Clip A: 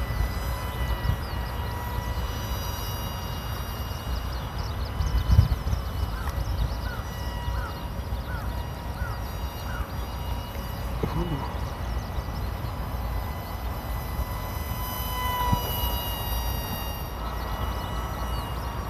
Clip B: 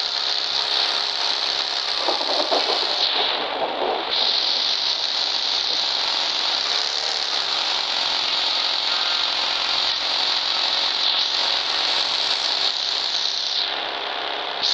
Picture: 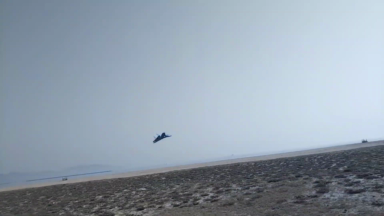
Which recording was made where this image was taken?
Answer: A